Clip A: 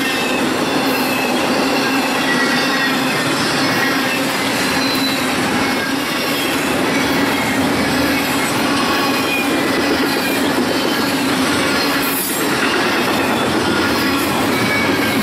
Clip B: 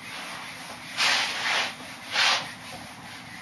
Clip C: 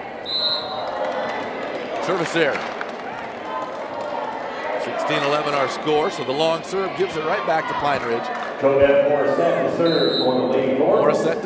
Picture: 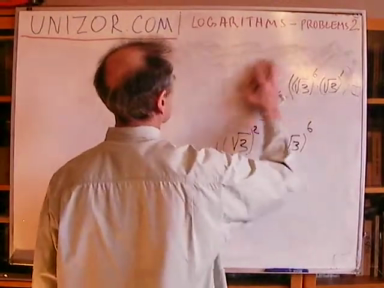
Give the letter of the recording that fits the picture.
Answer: B